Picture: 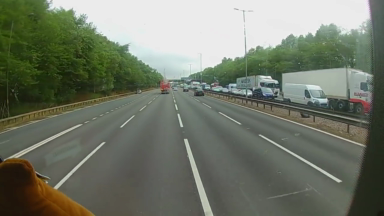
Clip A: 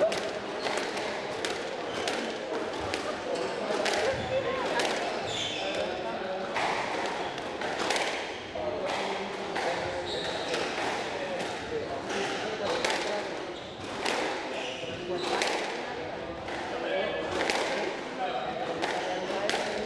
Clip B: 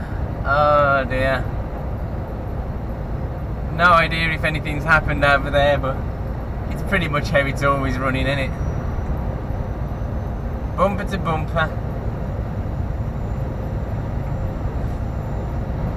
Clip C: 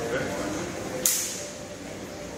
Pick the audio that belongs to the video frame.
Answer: B